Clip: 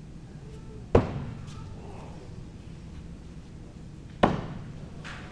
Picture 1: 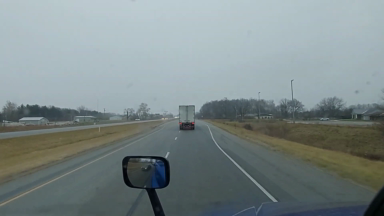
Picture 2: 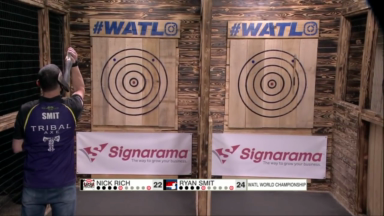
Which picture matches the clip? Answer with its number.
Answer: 2